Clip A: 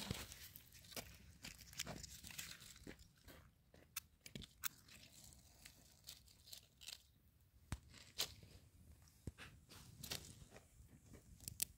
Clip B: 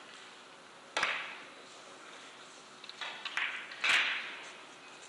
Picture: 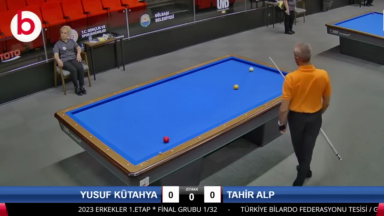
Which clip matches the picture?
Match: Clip B